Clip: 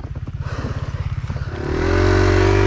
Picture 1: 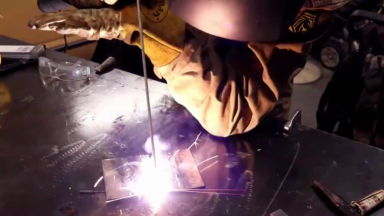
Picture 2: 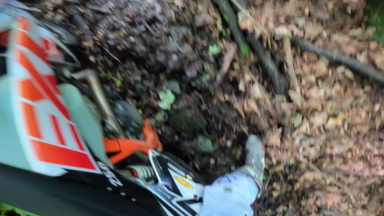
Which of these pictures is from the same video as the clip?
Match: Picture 2